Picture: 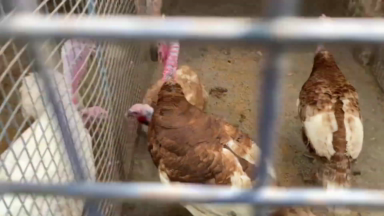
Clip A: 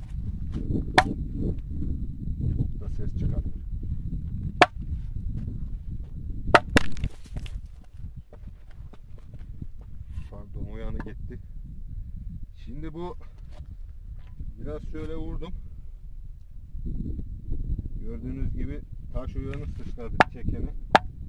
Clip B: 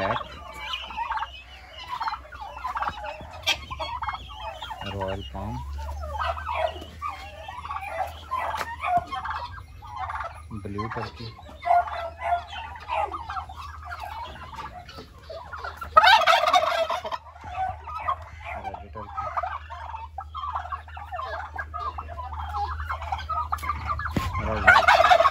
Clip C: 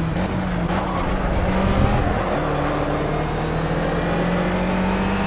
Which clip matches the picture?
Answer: B